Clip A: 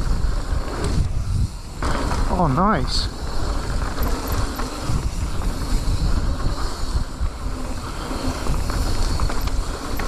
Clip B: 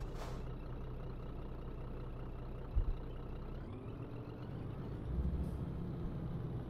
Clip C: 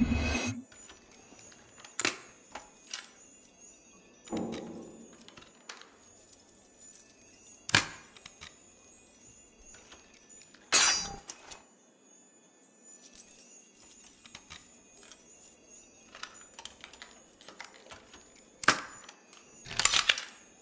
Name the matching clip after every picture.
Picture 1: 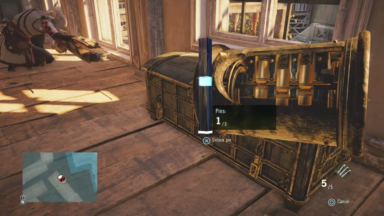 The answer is C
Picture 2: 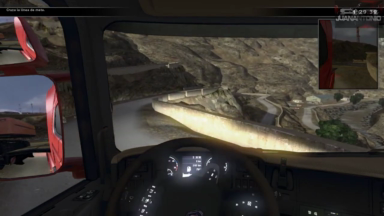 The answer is B